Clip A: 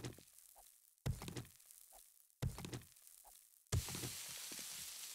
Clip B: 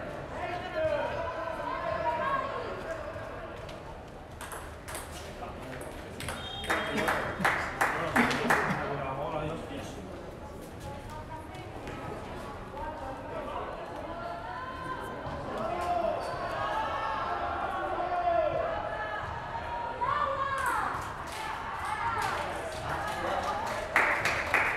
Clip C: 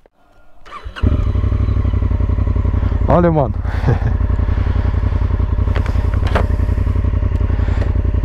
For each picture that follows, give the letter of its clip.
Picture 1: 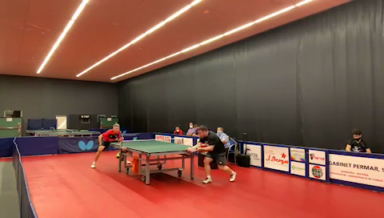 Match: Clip B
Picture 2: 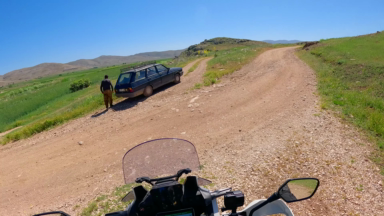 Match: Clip C